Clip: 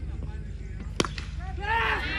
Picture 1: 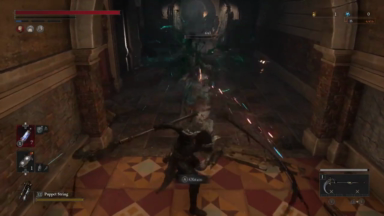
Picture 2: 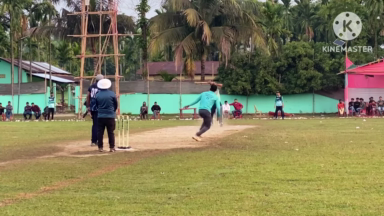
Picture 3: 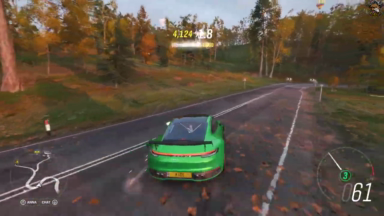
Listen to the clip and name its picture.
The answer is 2